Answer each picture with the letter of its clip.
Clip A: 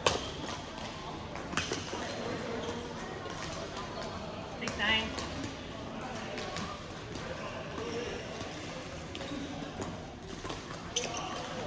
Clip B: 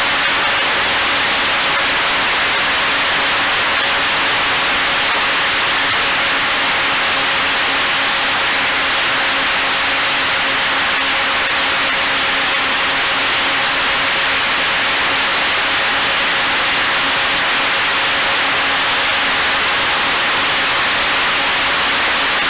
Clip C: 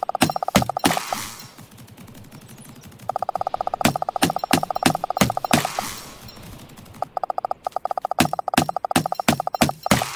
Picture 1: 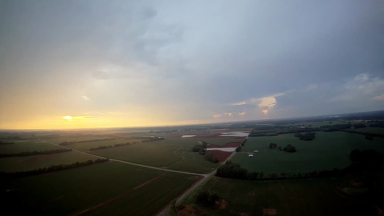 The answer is B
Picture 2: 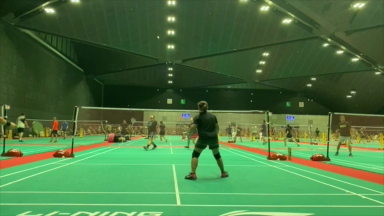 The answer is A